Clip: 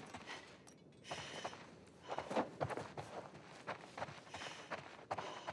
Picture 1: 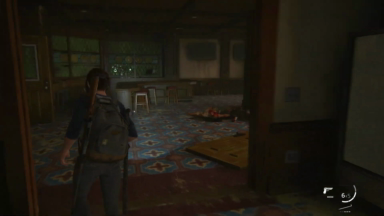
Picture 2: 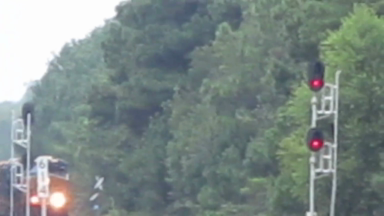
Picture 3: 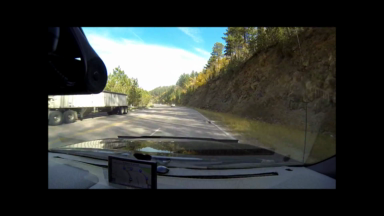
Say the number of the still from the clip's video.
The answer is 1